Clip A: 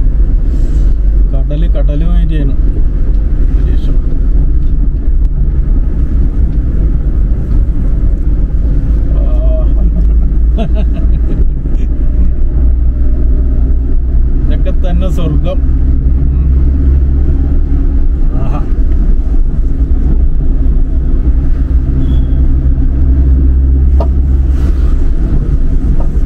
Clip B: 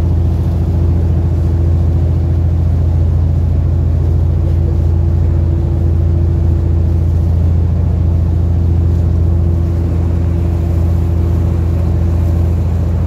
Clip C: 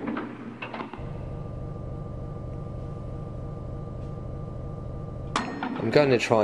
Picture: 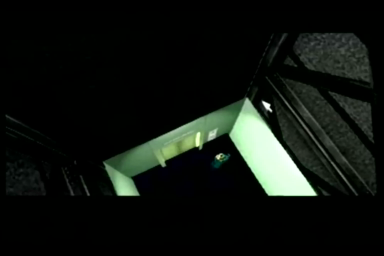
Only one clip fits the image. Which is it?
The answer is C